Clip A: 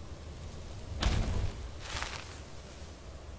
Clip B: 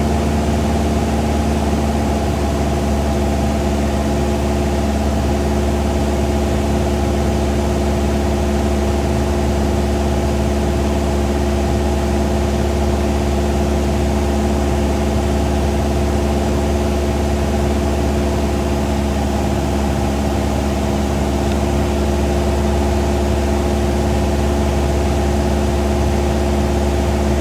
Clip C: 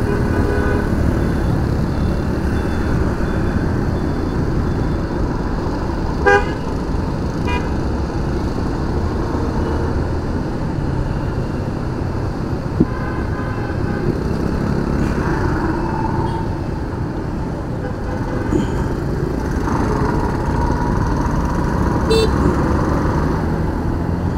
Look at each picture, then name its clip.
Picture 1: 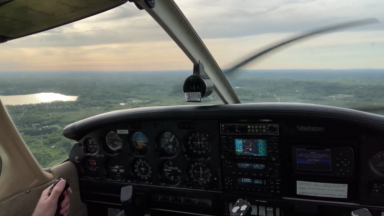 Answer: B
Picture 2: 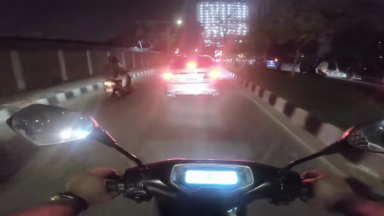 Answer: C